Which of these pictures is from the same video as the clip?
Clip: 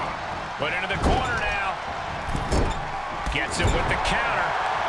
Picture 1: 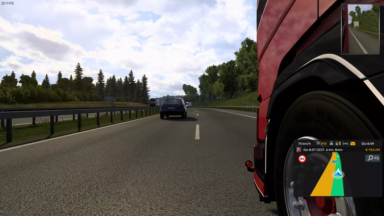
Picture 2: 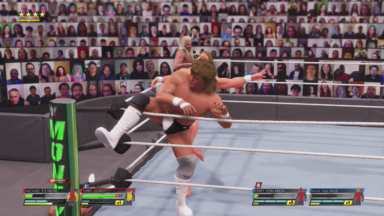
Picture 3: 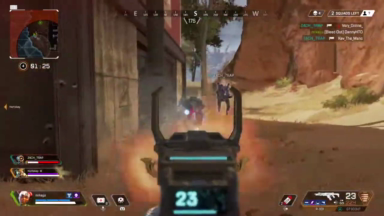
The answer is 2